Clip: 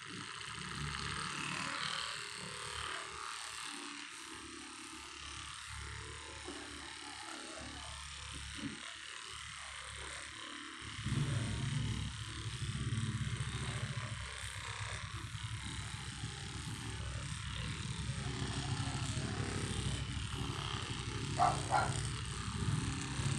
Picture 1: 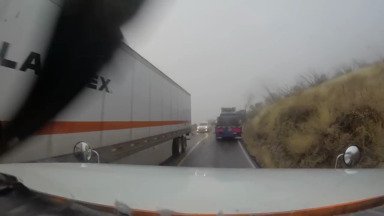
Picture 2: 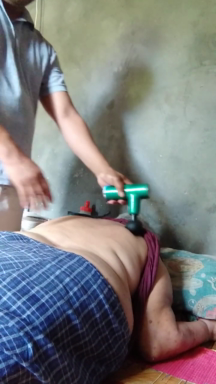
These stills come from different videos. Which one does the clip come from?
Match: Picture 2